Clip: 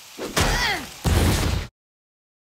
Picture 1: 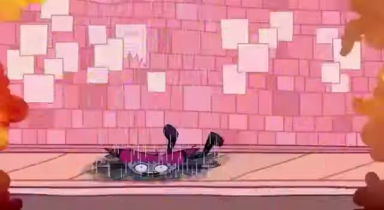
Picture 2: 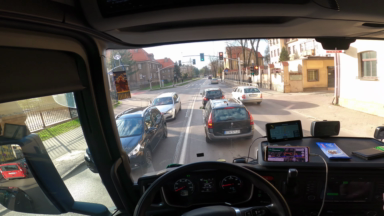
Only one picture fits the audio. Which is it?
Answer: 1